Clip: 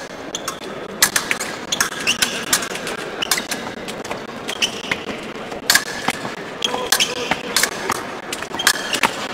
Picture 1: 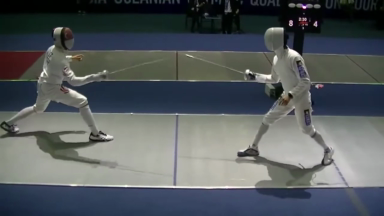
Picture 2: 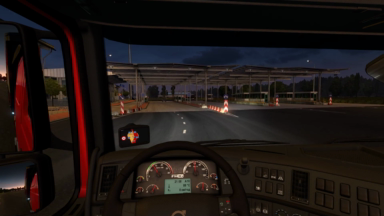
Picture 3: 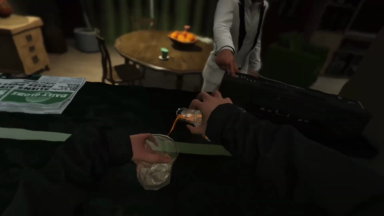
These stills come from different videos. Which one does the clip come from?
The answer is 1